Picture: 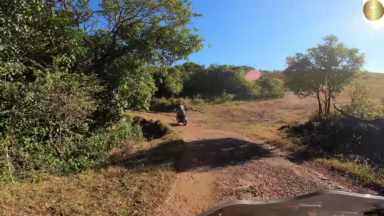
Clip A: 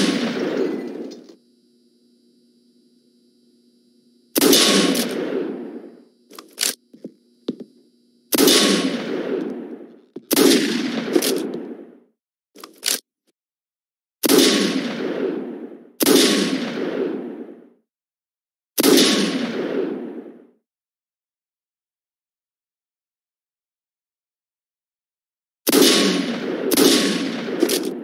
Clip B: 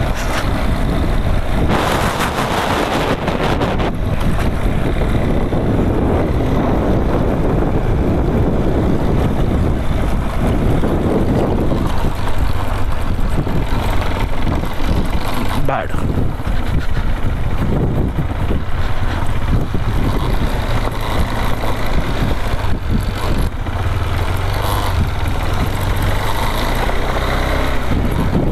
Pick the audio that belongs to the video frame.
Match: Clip B